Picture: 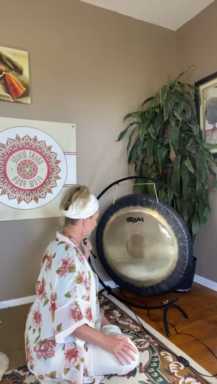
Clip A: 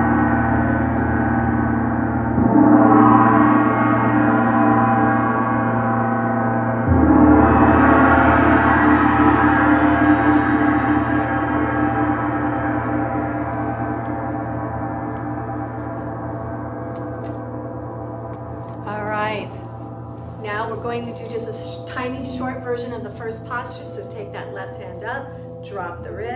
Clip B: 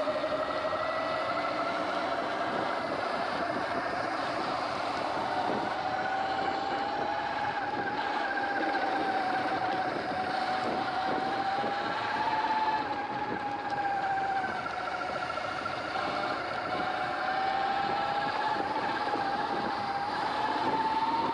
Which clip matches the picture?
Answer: A